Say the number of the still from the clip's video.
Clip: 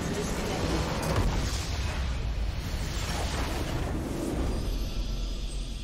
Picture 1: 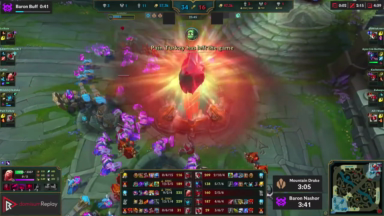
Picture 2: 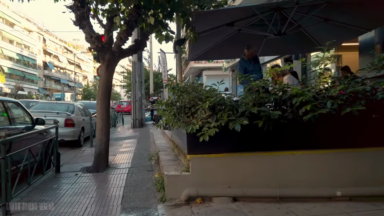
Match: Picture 1